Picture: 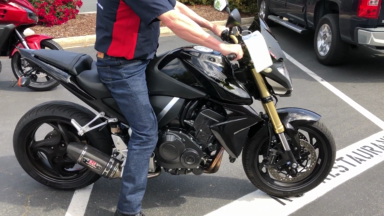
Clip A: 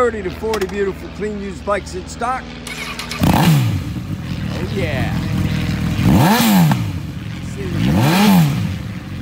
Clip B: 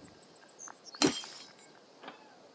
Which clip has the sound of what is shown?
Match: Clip A